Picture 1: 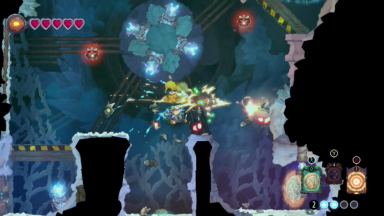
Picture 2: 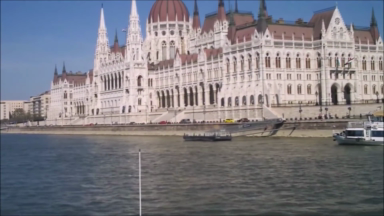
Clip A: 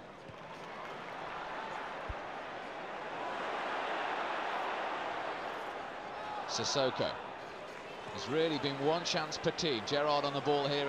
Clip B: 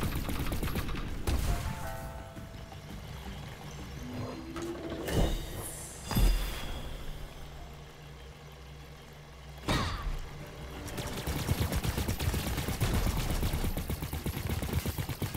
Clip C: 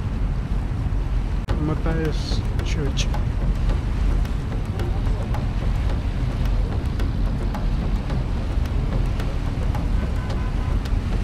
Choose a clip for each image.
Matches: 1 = B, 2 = C